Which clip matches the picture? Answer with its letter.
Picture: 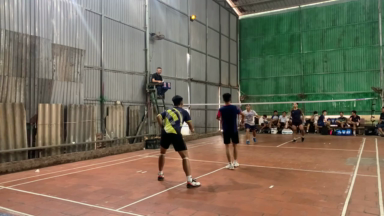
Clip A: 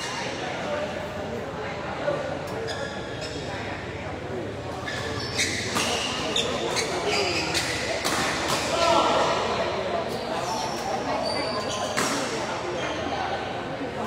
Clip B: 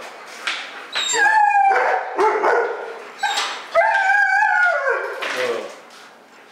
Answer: A